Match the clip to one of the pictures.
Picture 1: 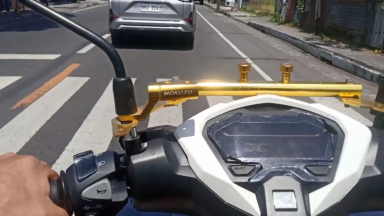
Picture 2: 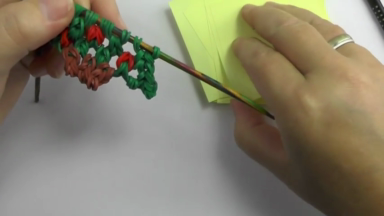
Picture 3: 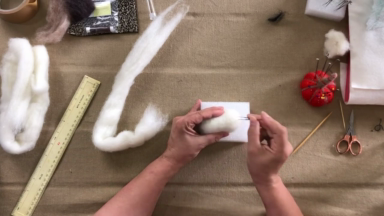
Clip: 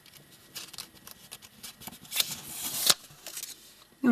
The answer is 2